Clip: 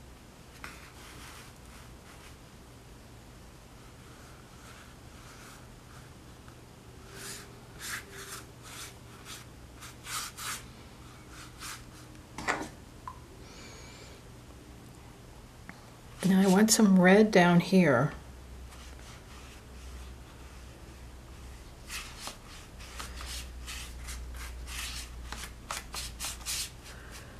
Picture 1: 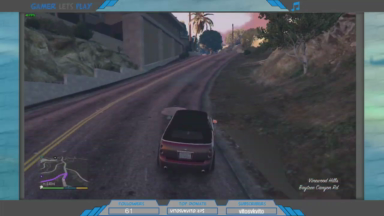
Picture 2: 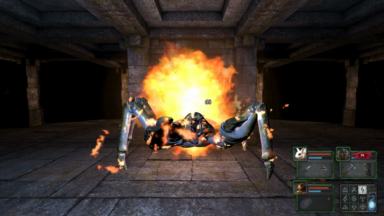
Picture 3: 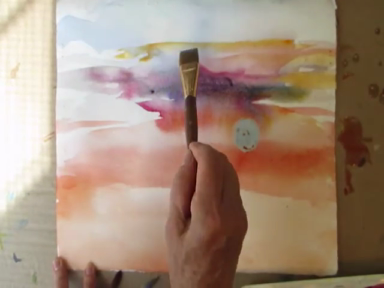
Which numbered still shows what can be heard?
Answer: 3